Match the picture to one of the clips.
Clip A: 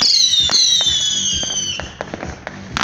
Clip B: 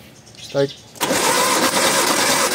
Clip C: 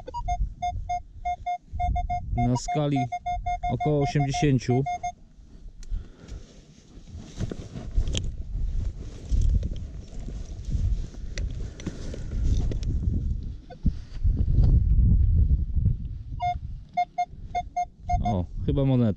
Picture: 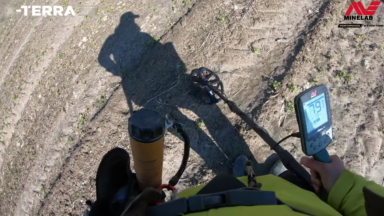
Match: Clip C